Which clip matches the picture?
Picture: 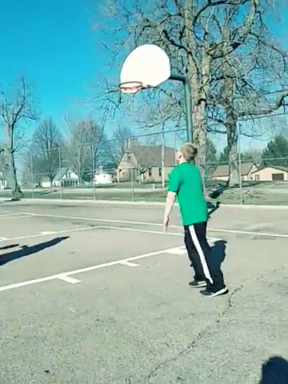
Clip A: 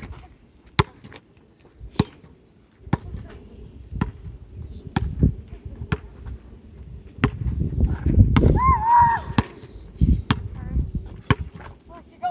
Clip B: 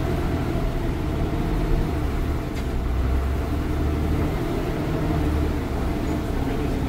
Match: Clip A